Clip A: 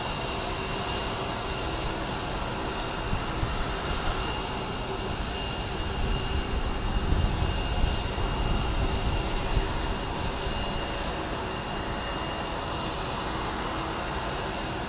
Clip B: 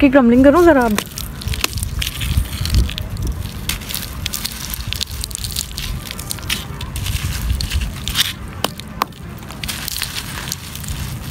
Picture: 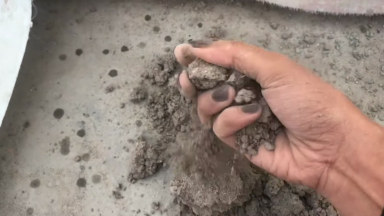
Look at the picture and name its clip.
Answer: B